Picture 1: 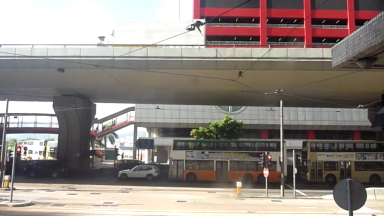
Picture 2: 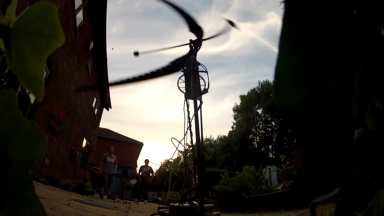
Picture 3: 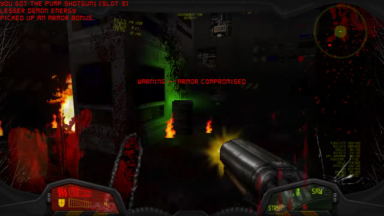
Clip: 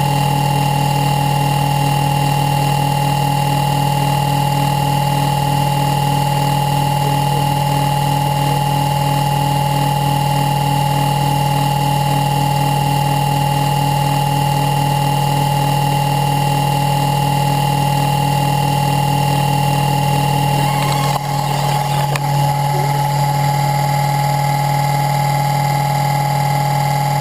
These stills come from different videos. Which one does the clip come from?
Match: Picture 2